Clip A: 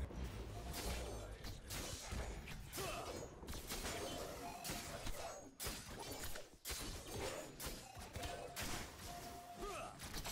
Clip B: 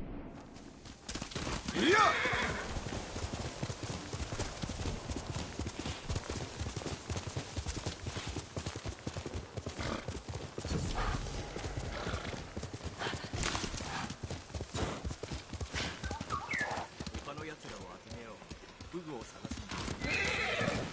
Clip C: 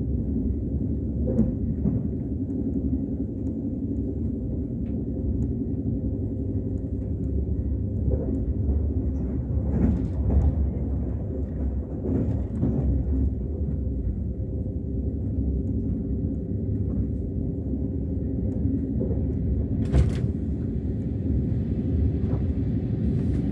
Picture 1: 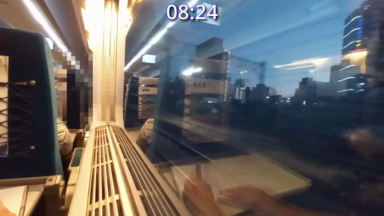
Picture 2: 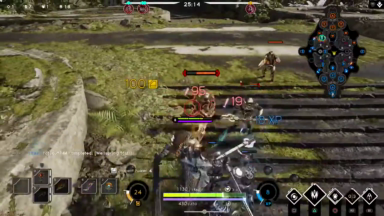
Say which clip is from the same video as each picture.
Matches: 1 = C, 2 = A